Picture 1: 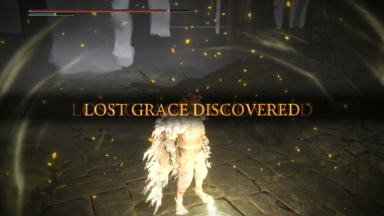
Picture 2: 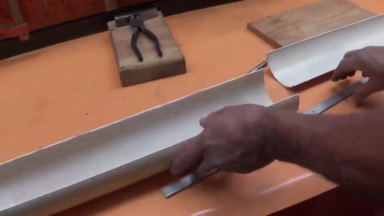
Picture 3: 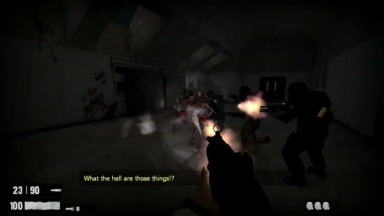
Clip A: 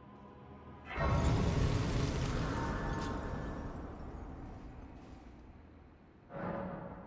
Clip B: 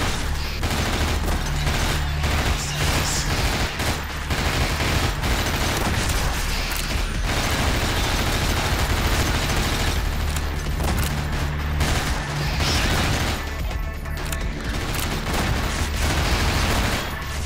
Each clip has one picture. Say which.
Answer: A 1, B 3